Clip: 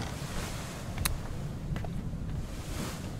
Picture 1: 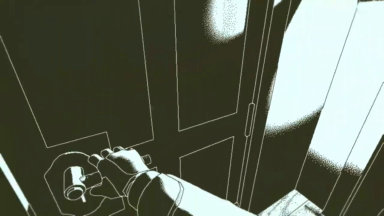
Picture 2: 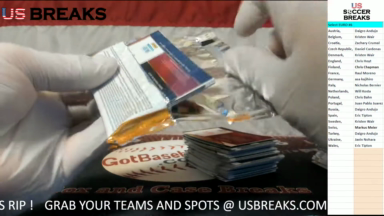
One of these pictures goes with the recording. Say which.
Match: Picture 1